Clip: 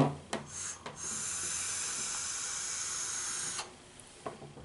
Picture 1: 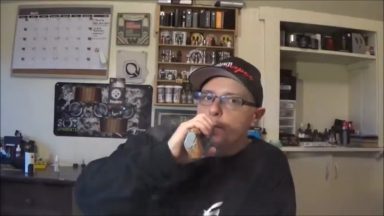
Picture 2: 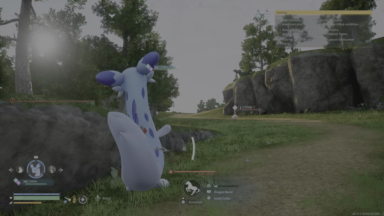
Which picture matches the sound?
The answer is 1